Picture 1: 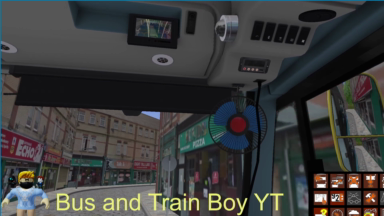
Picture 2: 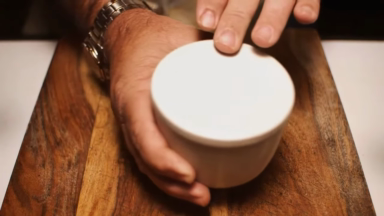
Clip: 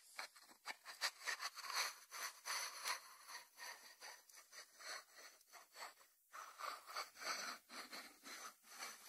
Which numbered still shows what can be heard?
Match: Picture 2